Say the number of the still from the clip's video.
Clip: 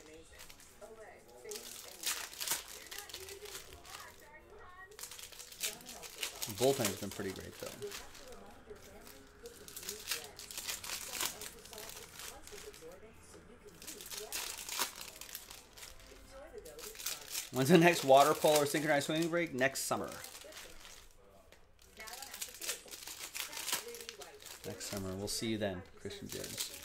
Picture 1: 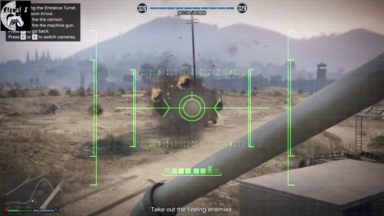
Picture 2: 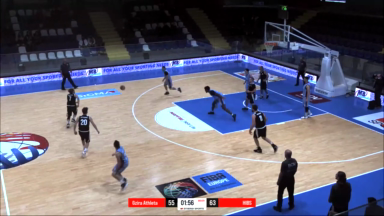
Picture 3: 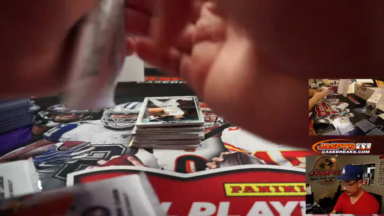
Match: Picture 3